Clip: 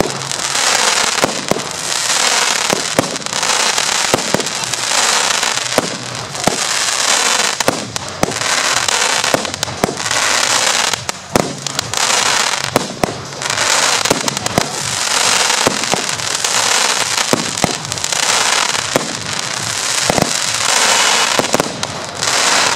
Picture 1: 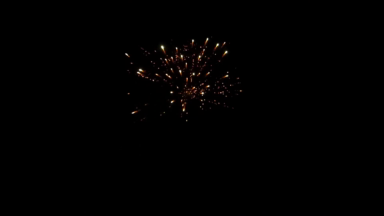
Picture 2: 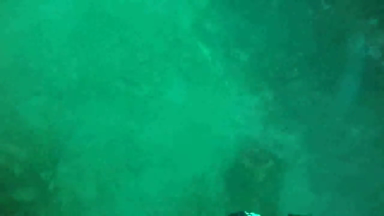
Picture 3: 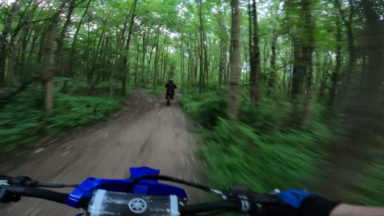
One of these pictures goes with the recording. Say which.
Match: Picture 1